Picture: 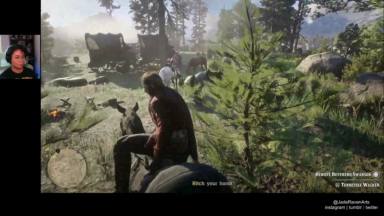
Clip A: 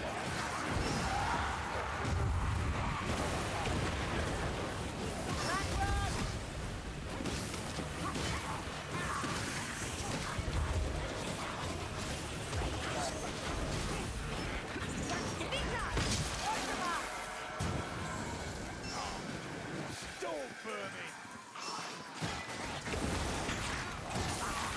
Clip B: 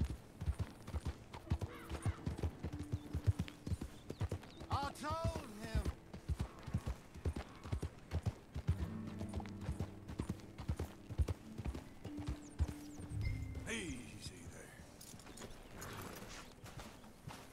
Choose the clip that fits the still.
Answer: B